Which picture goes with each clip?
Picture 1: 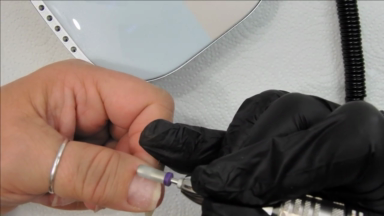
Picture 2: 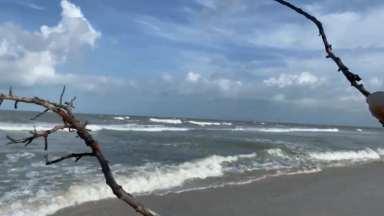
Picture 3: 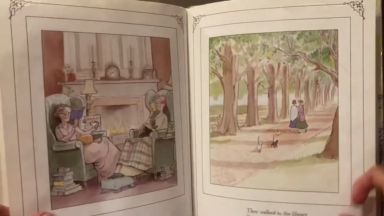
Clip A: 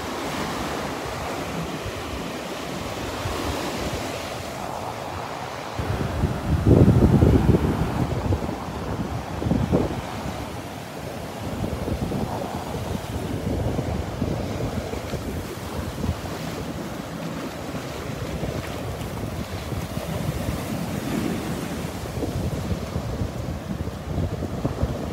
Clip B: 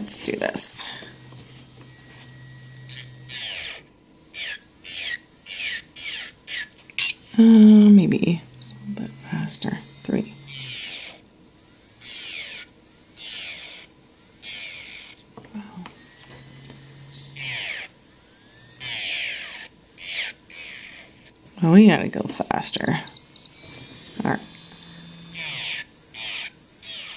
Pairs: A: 2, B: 1